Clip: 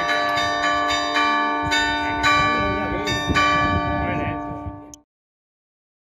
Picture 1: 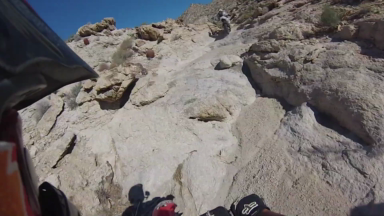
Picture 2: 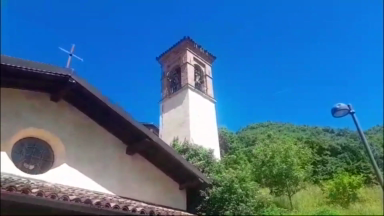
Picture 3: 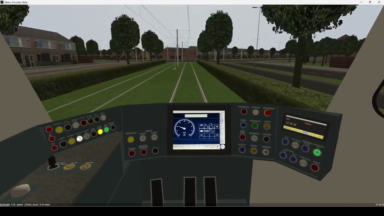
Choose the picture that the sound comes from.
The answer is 2